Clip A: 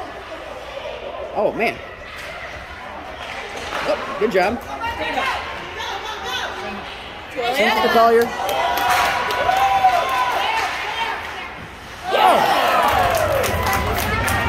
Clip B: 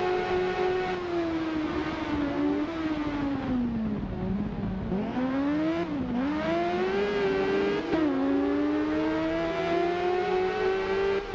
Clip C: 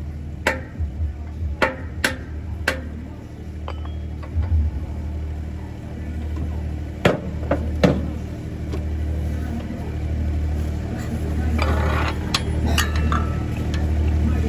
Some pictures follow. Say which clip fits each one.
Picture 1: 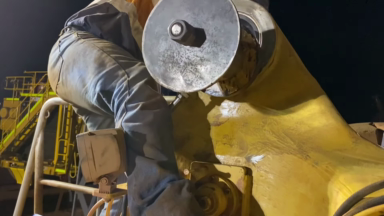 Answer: C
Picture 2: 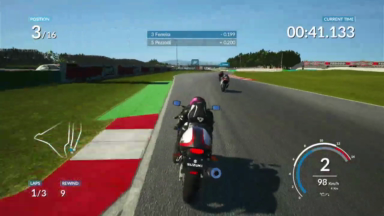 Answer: B